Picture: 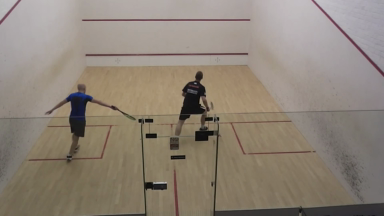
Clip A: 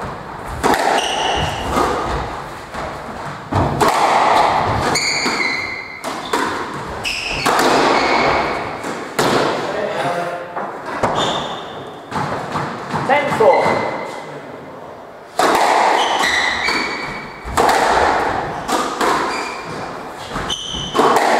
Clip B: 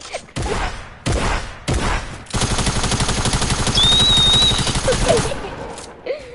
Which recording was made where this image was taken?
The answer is A